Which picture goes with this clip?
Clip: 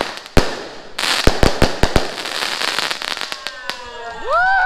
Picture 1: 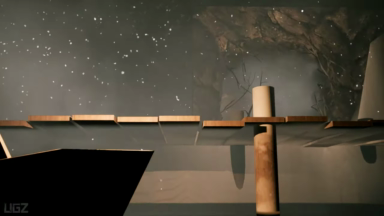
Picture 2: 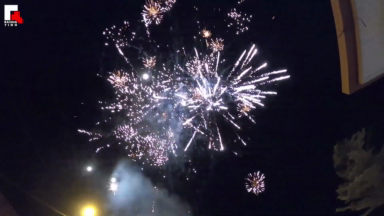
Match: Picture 2